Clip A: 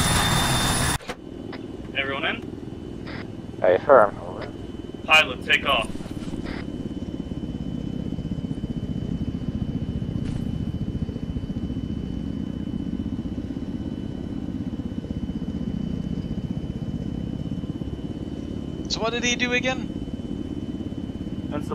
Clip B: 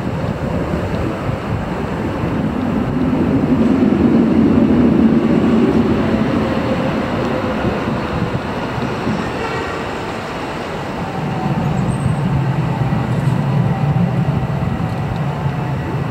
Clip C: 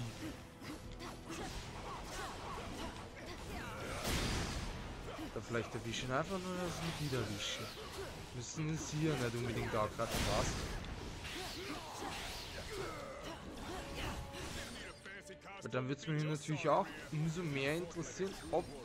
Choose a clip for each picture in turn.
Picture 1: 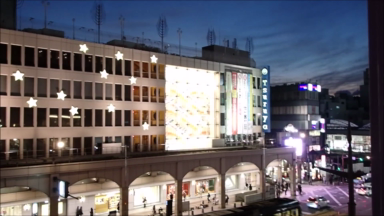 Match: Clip B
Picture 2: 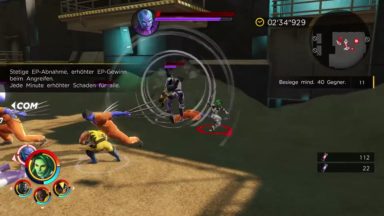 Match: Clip C